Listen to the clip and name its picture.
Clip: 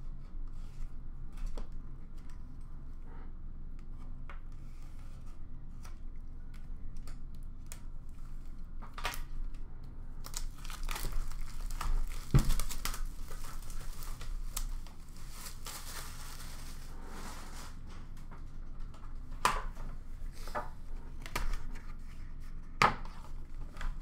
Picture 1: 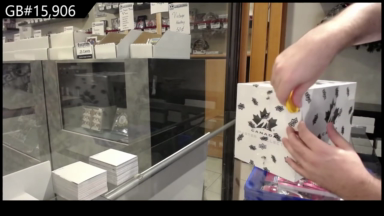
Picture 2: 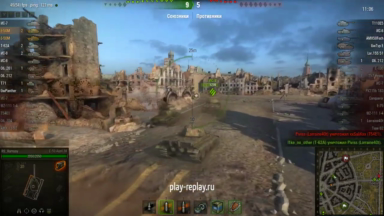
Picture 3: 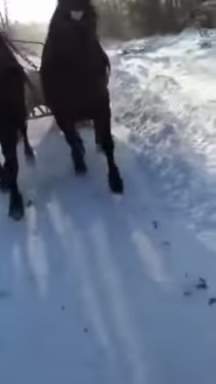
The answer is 1